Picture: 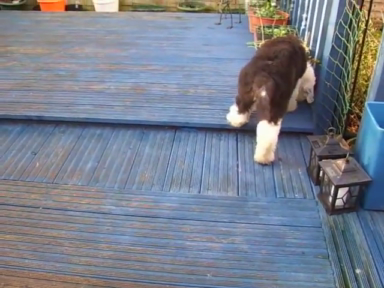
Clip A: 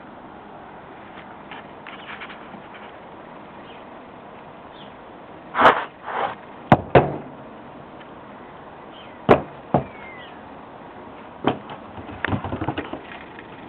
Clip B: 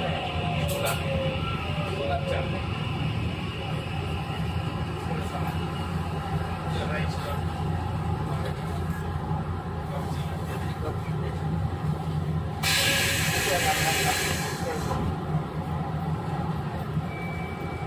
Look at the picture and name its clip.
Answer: A